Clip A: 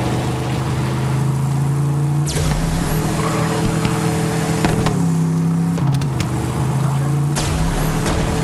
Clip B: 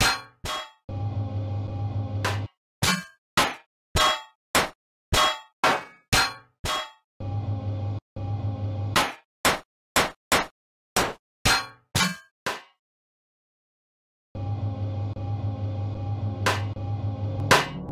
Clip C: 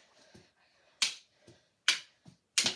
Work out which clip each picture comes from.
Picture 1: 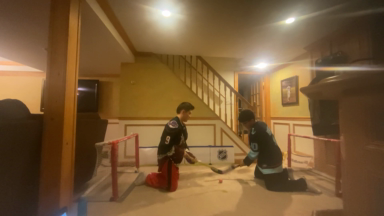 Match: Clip C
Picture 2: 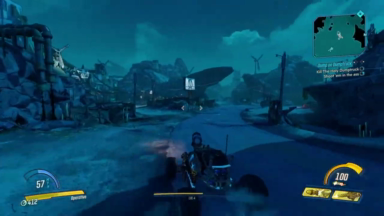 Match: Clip A